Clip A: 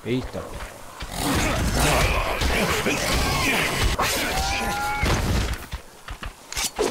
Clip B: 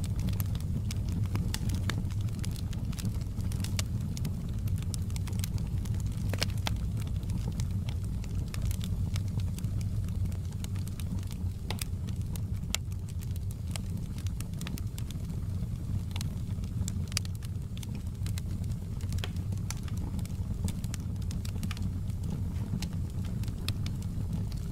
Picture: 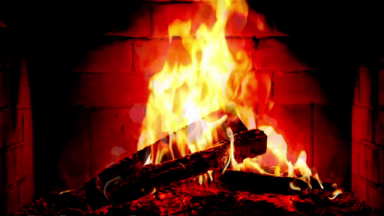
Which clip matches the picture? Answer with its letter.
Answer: B